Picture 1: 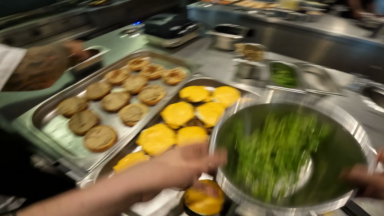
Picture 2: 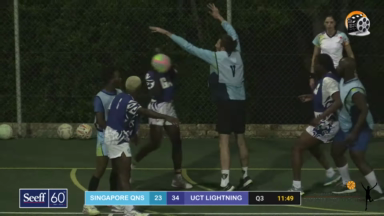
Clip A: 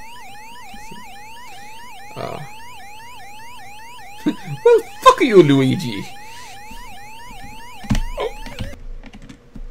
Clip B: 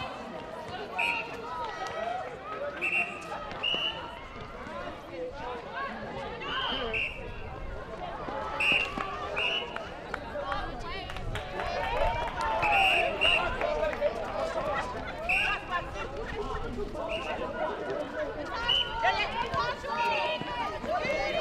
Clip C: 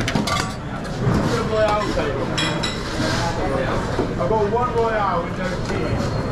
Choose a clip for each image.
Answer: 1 C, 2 B